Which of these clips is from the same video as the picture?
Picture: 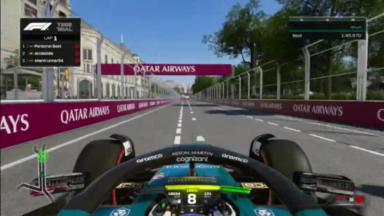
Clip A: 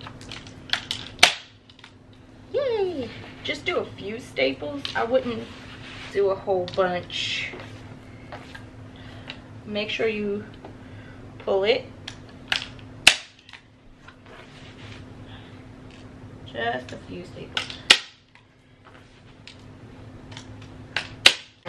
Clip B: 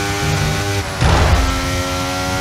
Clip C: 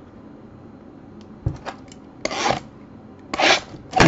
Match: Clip B